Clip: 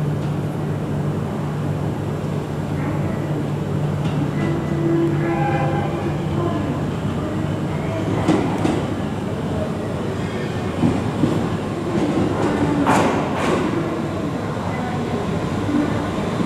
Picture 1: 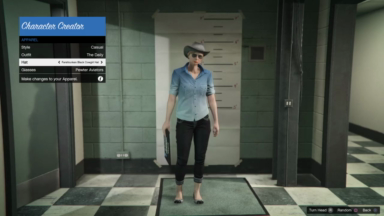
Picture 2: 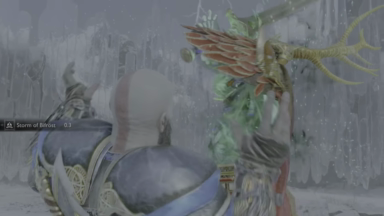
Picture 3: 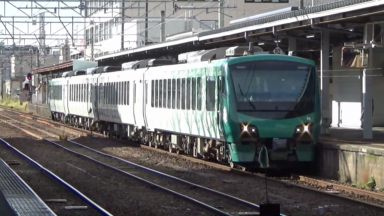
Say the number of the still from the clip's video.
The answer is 3